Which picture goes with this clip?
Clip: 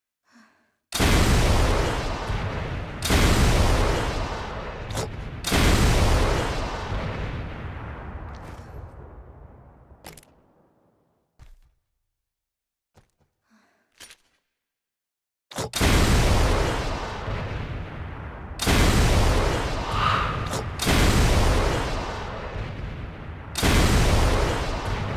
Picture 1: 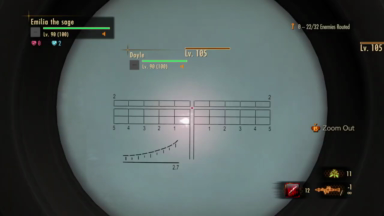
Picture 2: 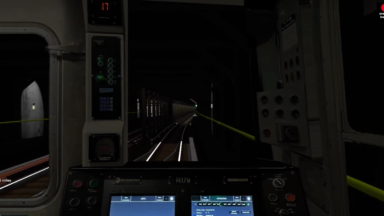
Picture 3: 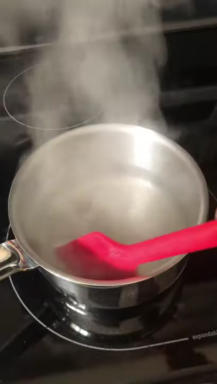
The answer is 1